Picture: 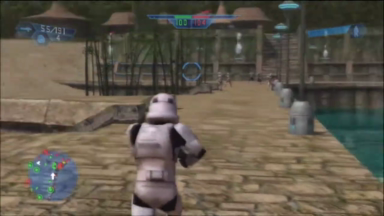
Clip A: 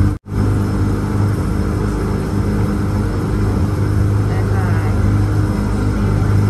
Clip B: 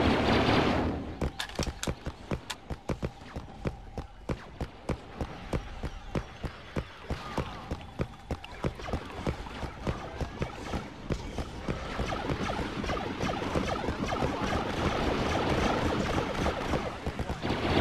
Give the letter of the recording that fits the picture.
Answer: B